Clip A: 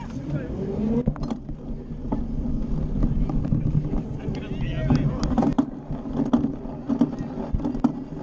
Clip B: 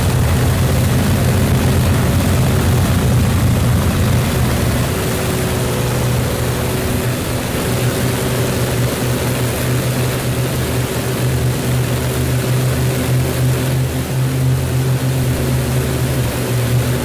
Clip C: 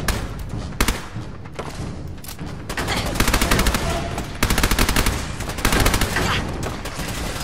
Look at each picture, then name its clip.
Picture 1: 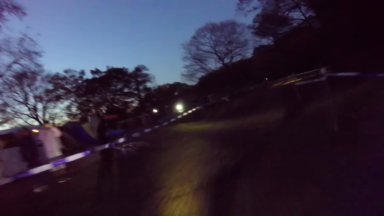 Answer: A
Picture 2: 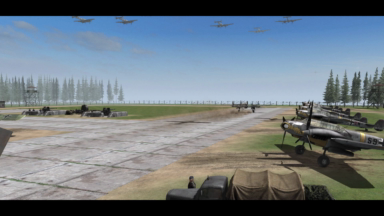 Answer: B